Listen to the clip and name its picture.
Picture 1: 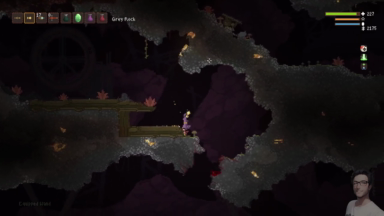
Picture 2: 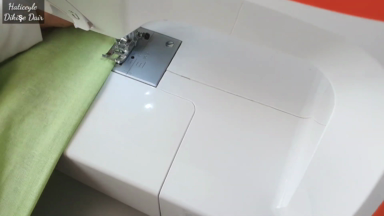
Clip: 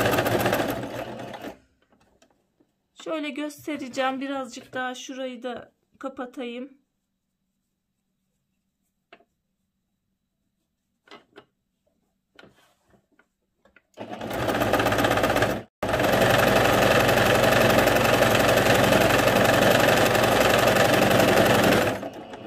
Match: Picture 2